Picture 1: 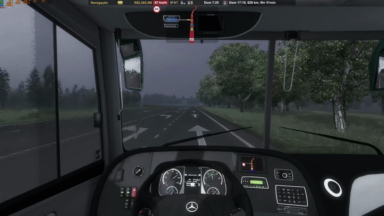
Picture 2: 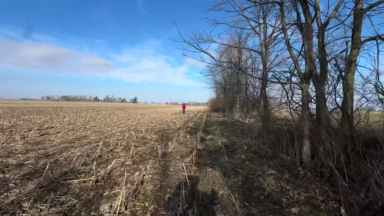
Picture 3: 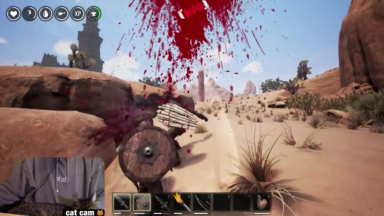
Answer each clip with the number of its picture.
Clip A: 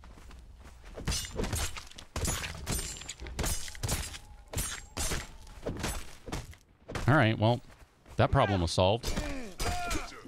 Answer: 3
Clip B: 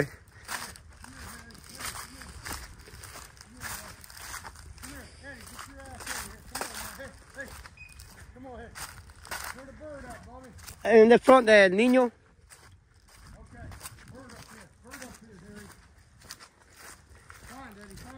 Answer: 2